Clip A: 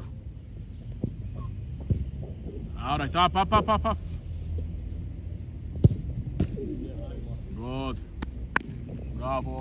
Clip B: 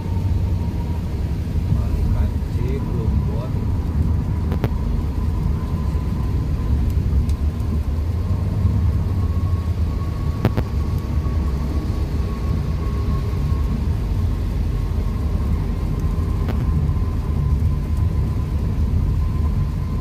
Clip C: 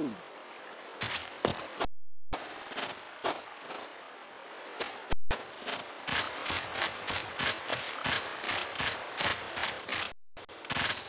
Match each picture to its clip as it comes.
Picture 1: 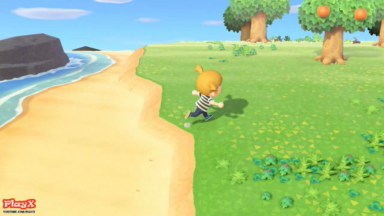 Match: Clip C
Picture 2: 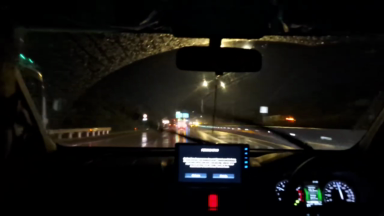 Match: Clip B